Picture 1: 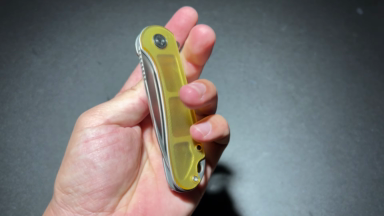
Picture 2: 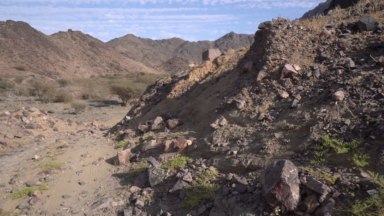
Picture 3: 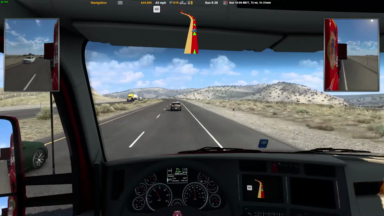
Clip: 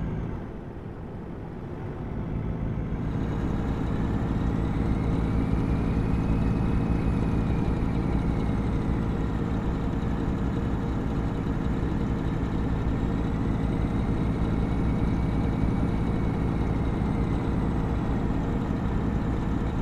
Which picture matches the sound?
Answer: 3